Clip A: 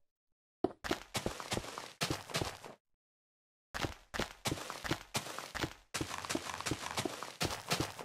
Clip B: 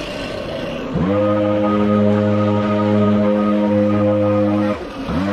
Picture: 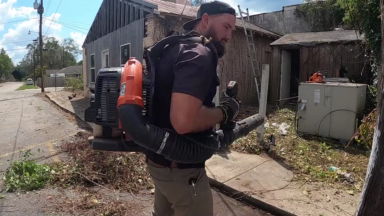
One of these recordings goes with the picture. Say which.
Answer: B